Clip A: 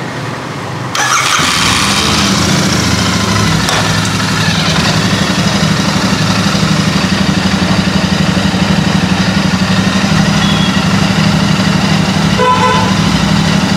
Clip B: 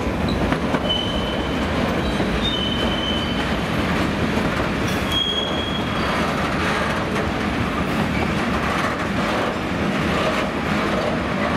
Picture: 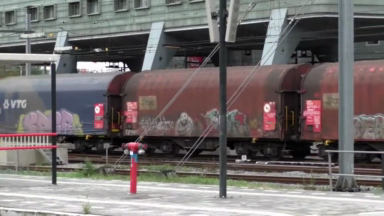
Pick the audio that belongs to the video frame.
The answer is B